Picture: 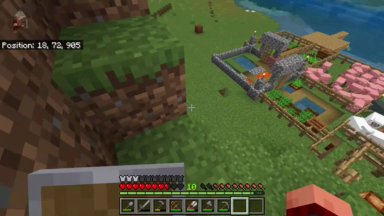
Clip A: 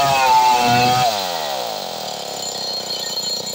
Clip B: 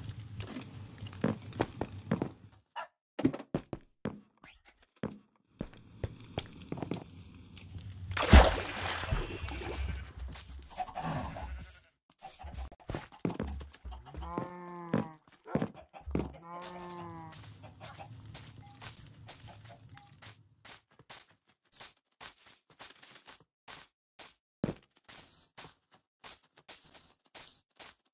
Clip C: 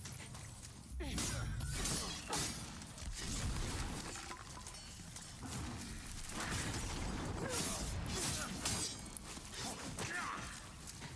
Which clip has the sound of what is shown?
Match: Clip B